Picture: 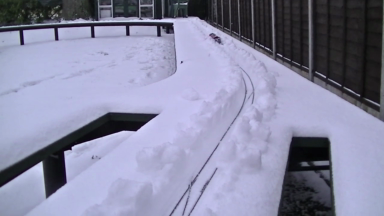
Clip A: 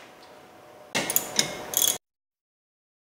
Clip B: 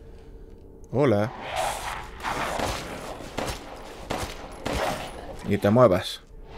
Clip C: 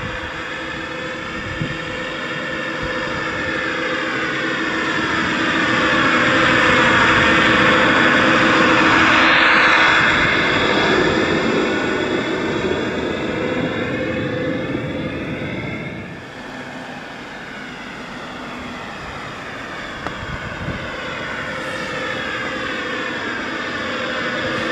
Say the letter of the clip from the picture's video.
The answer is C